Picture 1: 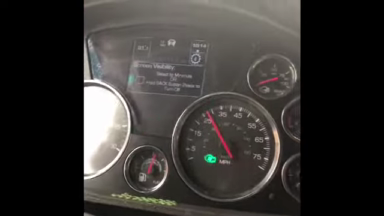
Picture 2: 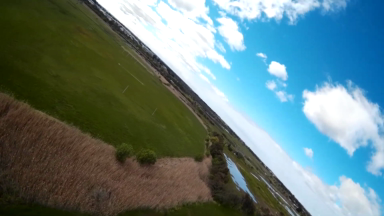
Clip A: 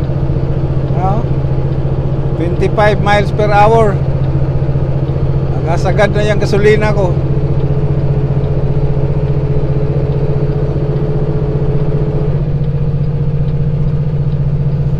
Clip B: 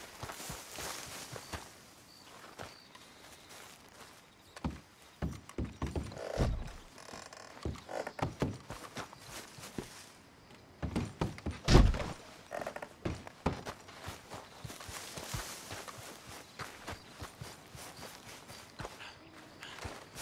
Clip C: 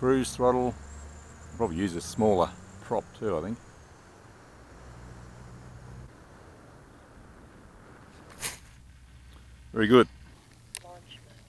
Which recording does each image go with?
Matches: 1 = A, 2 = C